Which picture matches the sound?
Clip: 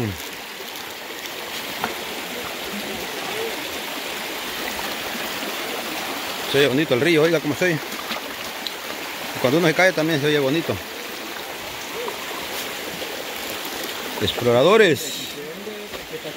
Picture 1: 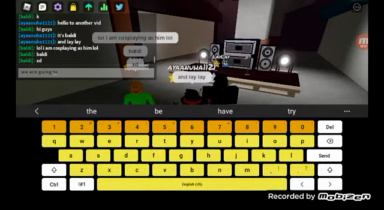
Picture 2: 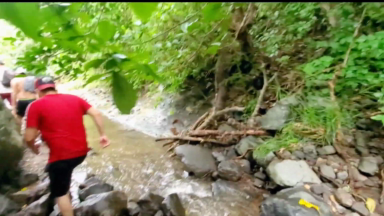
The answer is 2